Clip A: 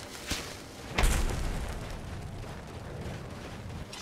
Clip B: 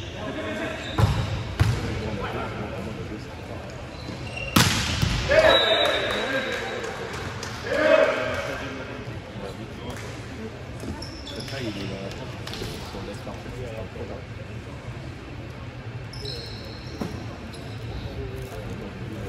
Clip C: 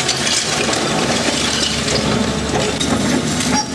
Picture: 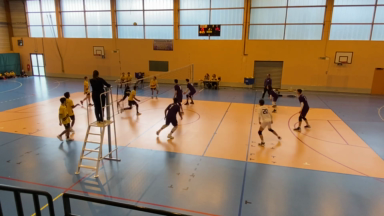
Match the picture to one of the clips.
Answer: B